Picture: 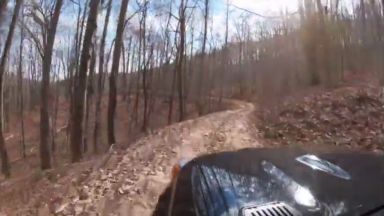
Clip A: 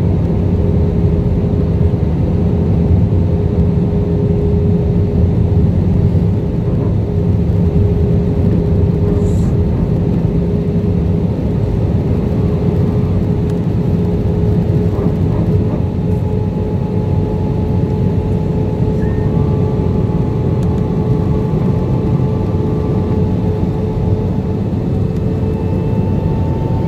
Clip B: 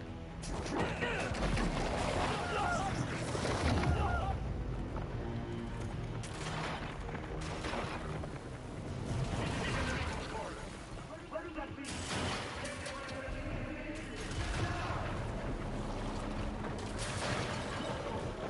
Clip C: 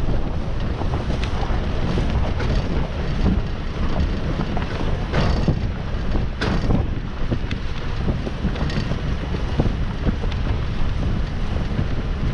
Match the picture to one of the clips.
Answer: C